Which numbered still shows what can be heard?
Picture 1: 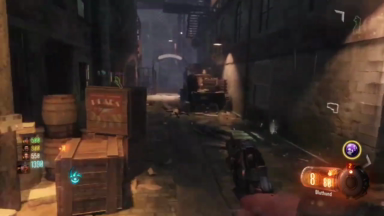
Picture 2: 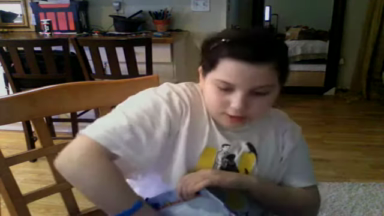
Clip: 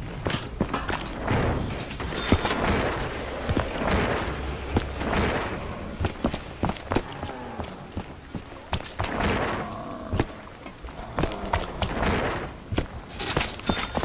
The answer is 1